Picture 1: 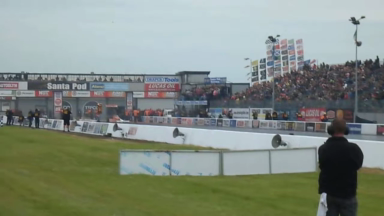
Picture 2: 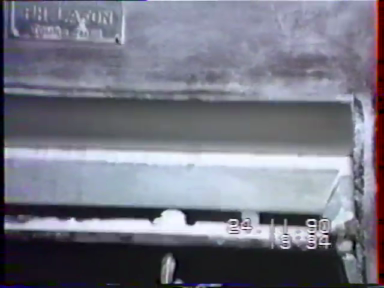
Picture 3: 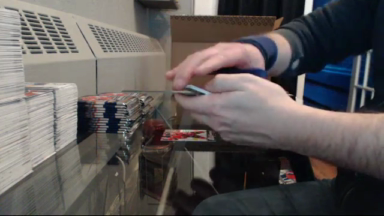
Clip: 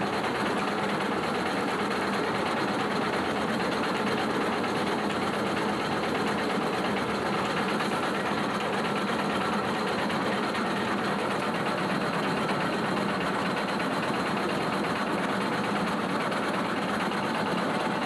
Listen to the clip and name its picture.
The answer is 2